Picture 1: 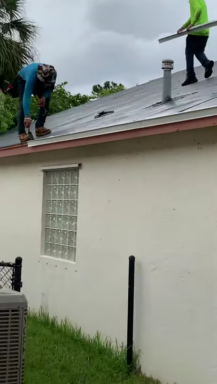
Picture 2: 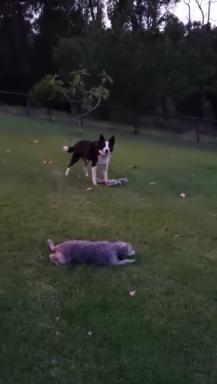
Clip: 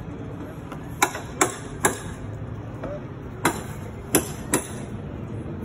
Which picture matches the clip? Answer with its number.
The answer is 1